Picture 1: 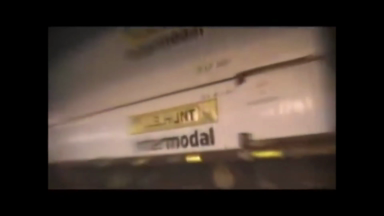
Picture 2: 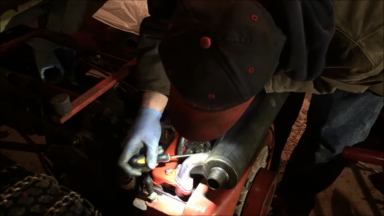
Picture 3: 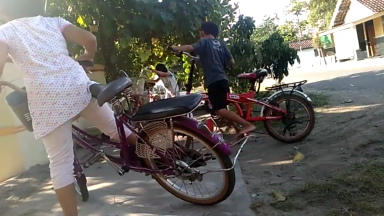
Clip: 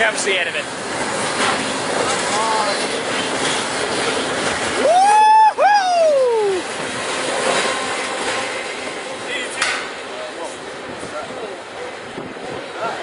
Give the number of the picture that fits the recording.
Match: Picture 1